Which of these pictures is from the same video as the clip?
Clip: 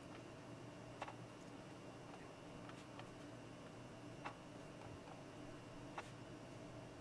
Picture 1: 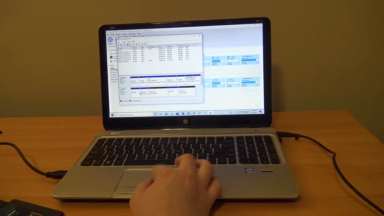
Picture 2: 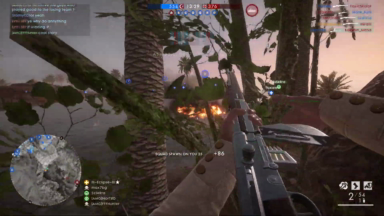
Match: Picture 1